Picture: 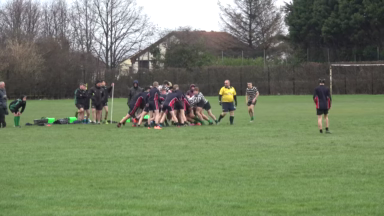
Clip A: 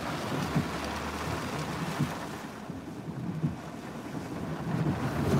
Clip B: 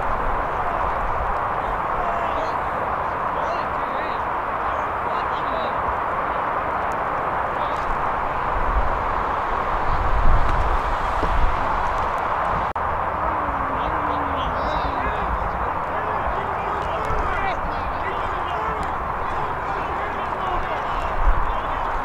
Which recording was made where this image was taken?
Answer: B